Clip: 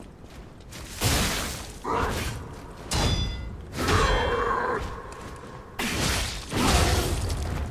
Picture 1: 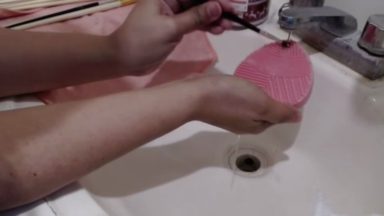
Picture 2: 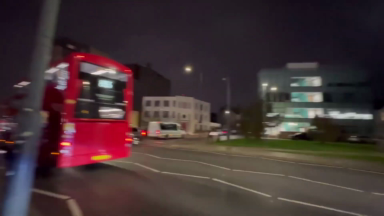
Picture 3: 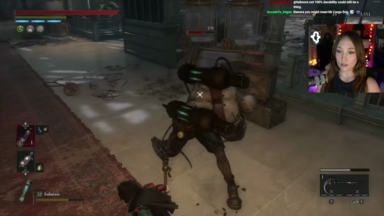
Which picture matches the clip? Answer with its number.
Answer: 3